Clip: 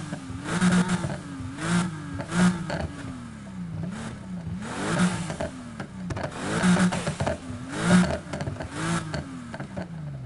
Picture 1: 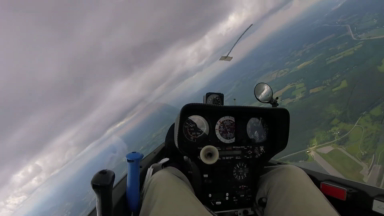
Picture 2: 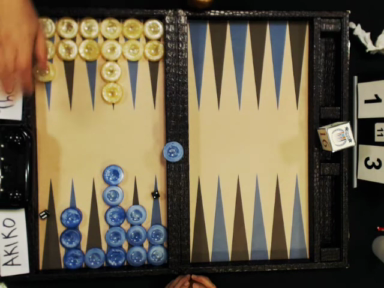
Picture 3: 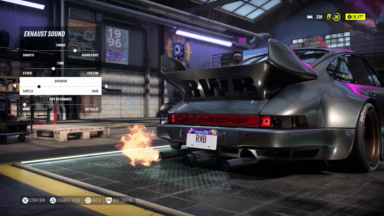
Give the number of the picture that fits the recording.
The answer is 3